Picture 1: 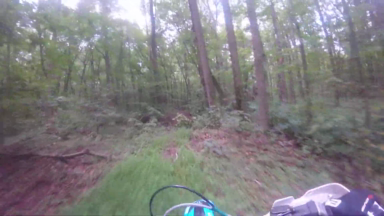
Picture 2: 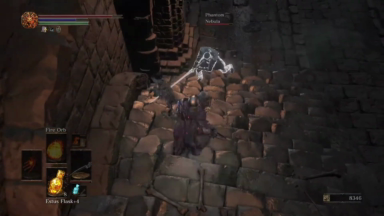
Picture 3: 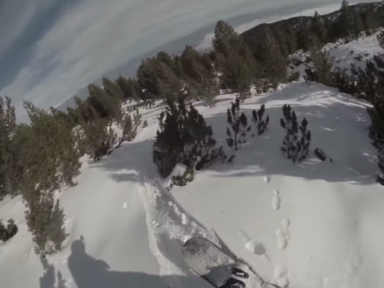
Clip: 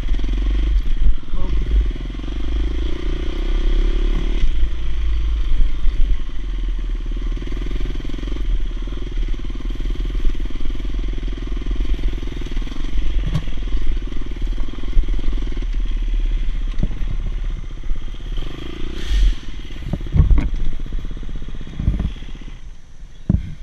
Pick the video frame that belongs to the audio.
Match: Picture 1